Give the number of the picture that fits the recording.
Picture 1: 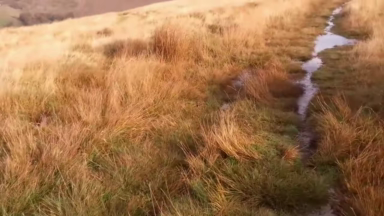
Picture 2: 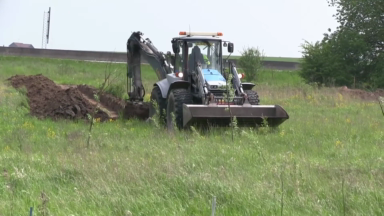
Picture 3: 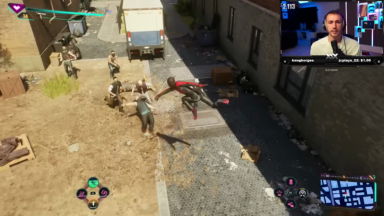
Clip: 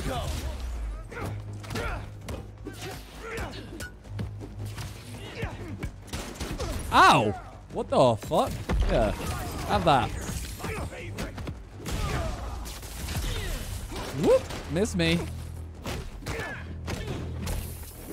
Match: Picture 3